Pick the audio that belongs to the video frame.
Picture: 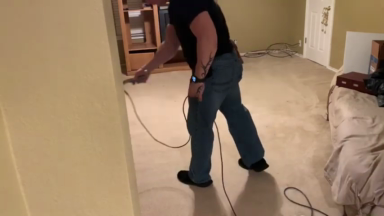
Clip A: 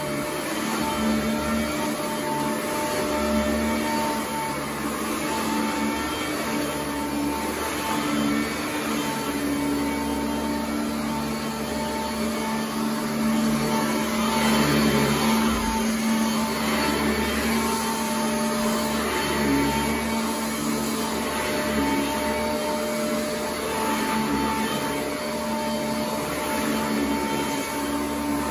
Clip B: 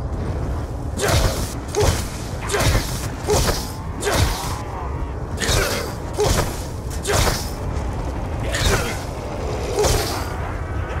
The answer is A